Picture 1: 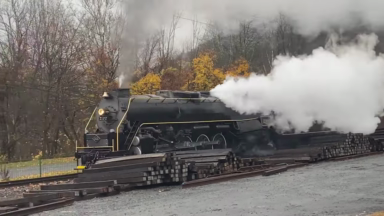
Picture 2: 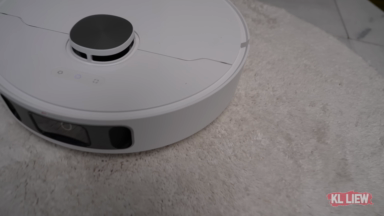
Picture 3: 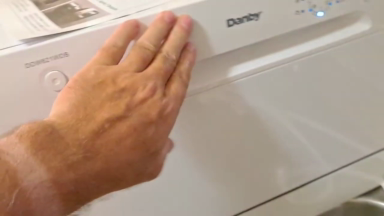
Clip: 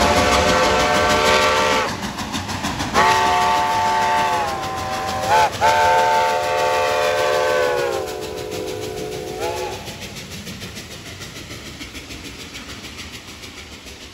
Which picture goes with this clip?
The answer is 1